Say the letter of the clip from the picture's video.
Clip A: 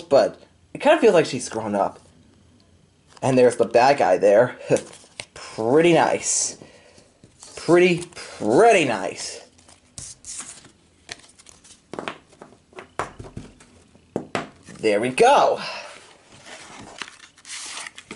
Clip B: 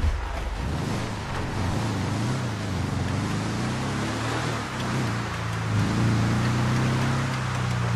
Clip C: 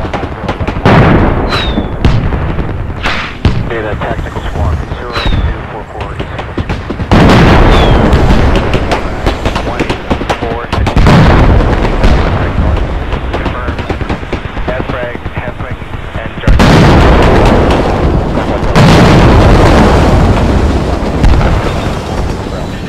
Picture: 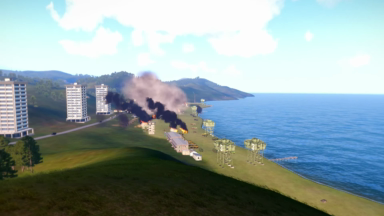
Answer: C